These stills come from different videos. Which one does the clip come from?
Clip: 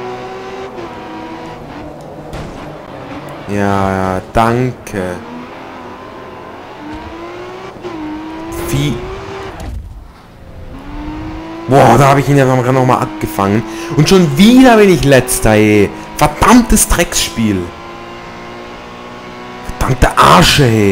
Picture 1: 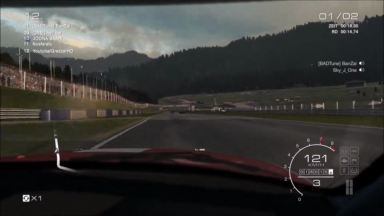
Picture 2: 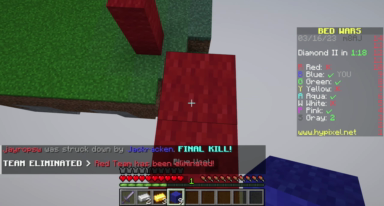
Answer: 1